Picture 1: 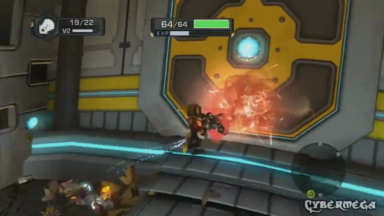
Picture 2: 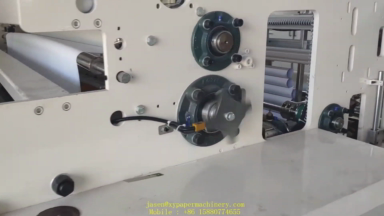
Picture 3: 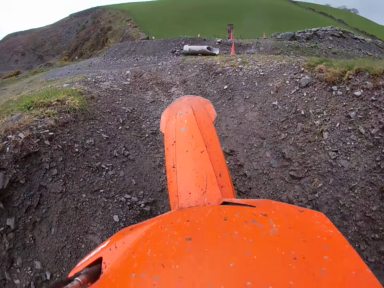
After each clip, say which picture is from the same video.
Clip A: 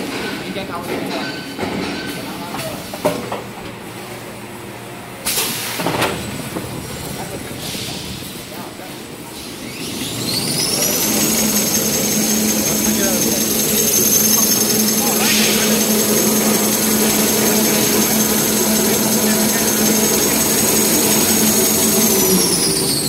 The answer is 2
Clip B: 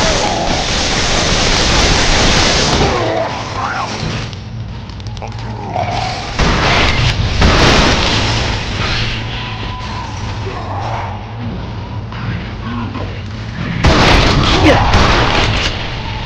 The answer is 1